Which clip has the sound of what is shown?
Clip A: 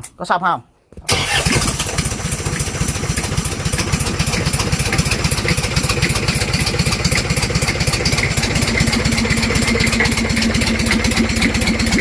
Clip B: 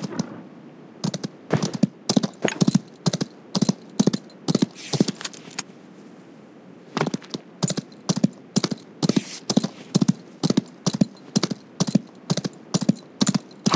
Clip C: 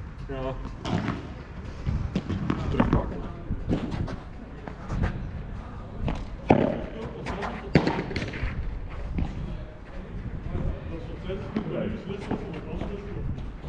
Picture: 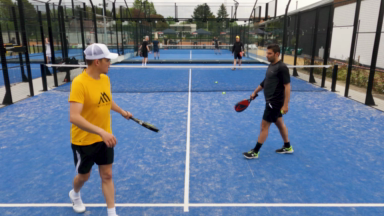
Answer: C